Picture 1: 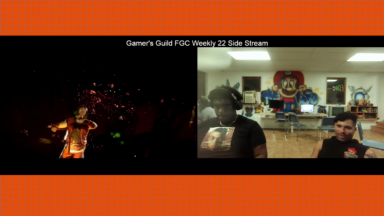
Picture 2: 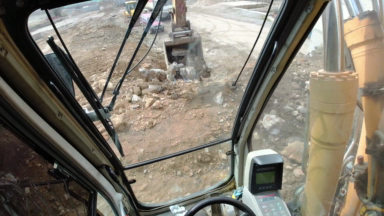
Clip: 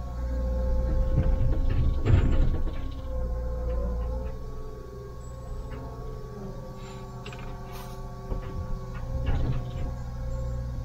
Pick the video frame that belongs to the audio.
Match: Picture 2